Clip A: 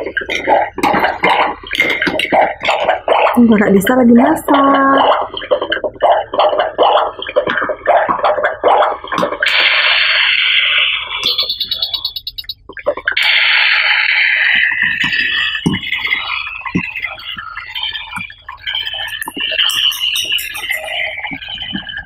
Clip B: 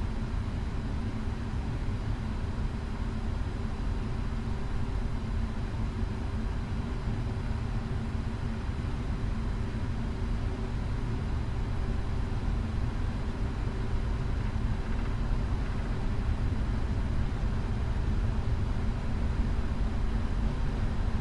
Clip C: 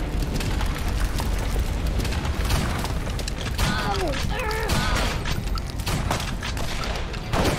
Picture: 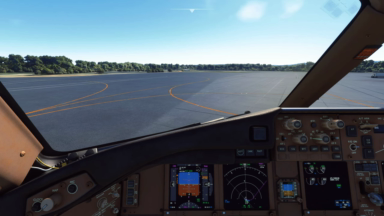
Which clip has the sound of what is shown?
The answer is B